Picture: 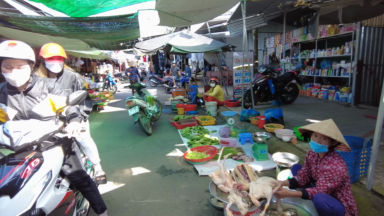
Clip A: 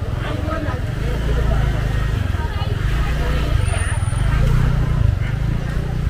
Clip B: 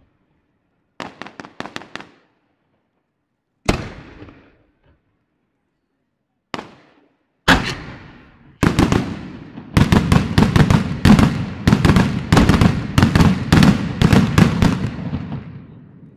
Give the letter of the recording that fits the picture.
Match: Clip A